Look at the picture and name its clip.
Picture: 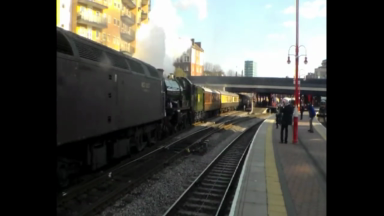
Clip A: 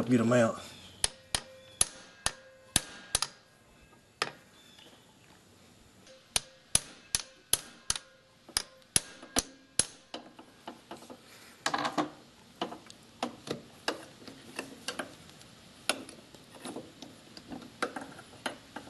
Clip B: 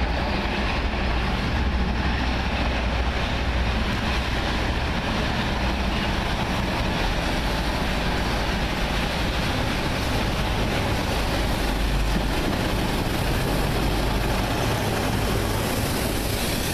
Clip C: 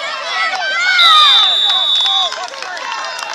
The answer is B